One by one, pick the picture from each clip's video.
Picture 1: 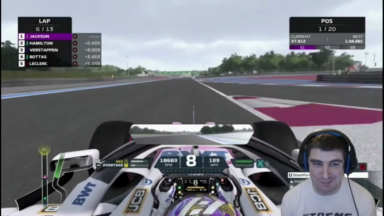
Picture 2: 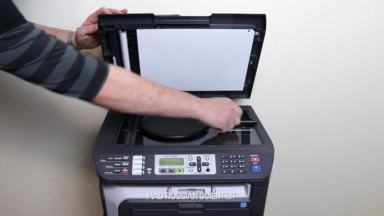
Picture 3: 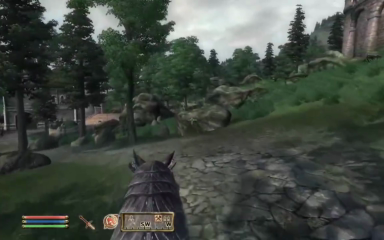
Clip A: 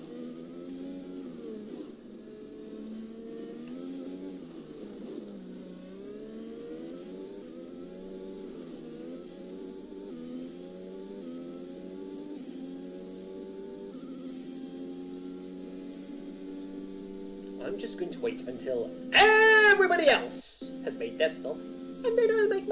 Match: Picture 1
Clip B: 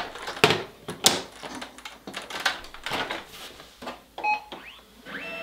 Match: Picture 2